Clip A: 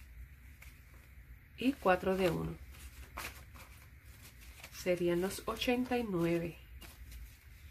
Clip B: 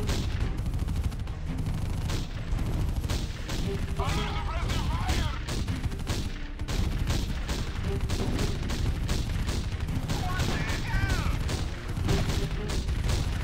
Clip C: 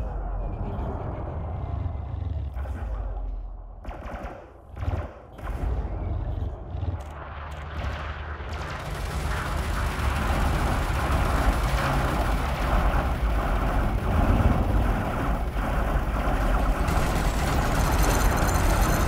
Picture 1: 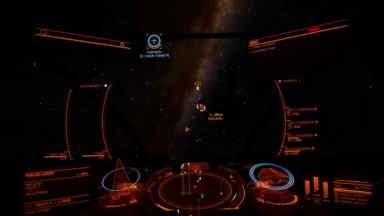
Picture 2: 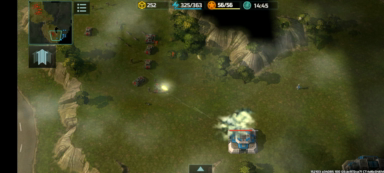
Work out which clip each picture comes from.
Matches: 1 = C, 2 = B